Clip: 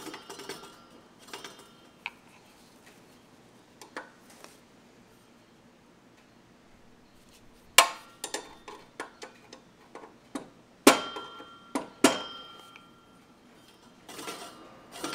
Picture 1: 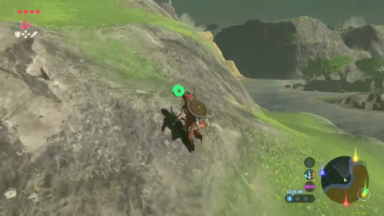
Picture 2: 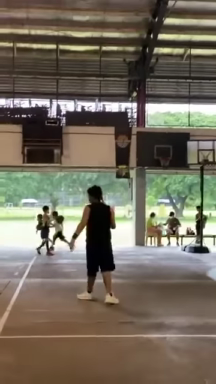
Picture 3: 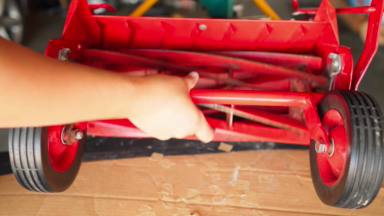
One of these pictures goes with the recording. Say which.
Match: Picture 3